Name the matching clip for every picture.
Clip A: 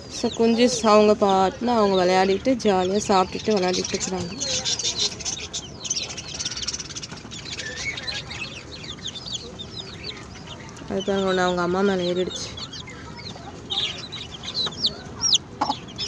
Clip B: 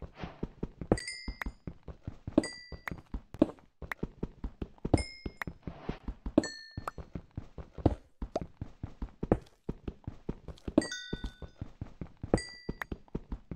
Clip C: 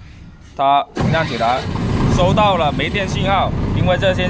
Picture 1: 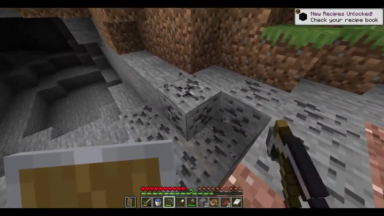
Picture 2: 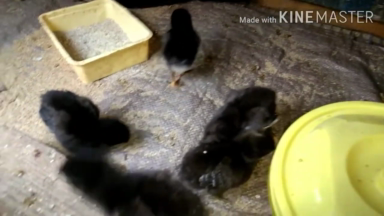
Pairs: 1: B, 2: A